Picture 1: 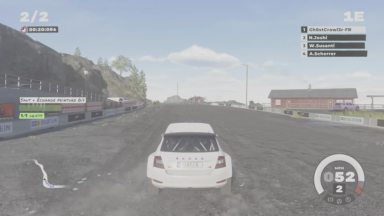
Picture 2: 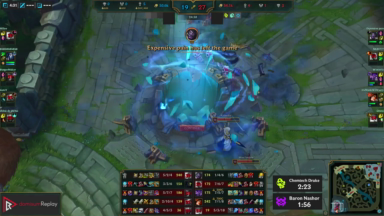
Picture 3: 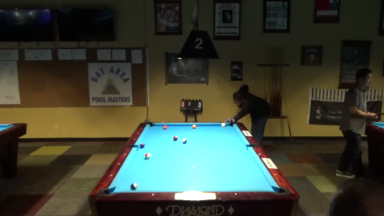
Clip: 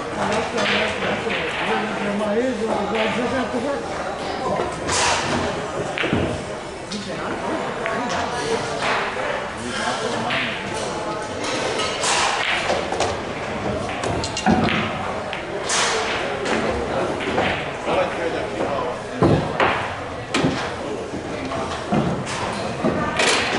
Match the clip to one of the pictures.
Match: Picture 3